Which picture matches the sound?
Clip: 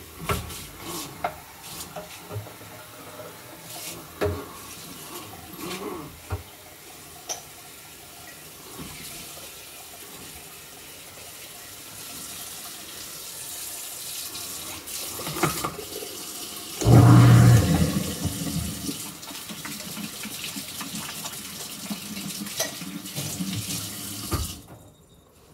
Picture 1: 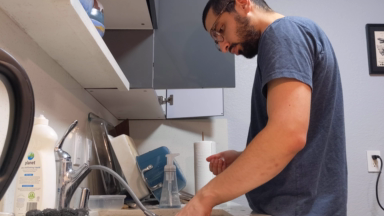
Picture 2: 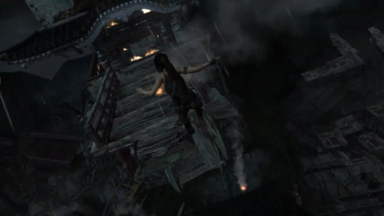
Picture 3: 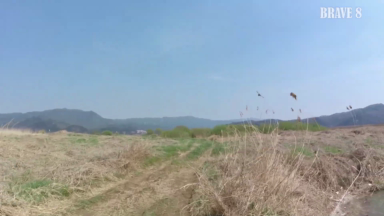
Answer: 1